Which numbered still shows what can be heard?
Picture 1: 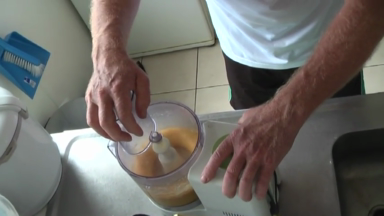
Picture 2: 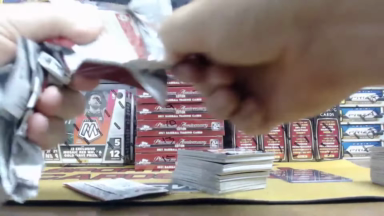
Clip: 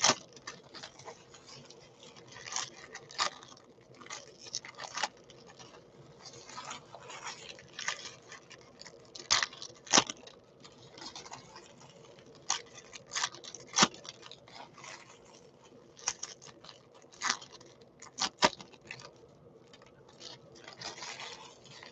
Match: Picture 2